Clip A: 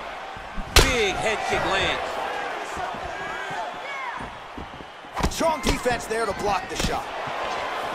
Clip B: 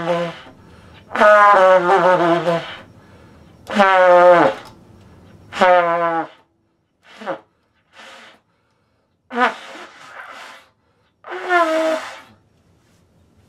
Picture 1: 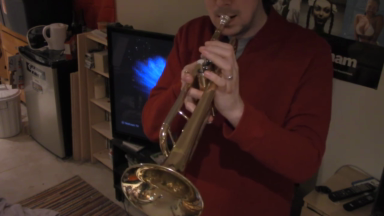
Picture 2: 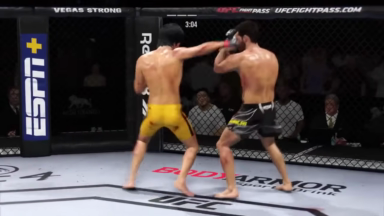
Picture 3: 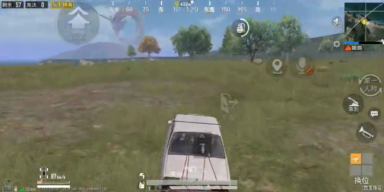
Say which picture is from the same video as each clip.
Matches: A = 2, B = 1